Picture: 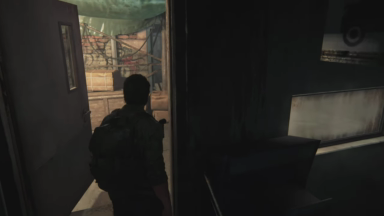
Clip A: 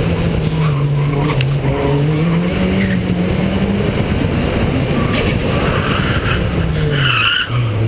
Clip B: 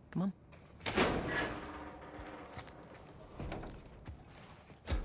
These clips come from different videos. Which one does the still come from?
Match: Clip B